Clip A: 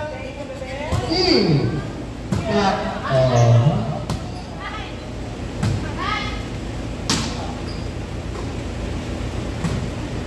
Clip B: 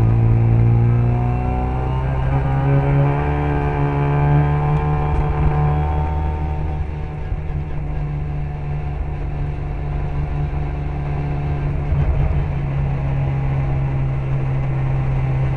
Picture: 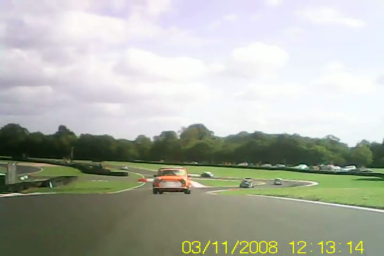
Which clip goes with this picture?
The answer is B